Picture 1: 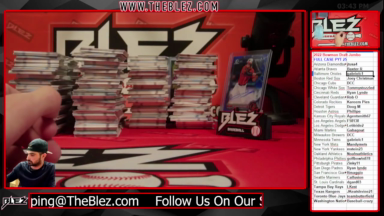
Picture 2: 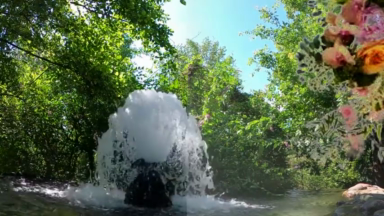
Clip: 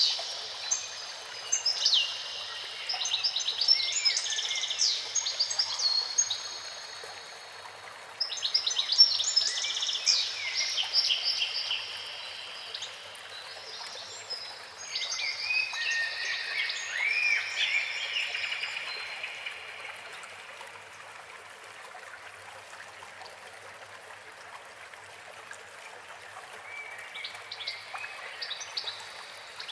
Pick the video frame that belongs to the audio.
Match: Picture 2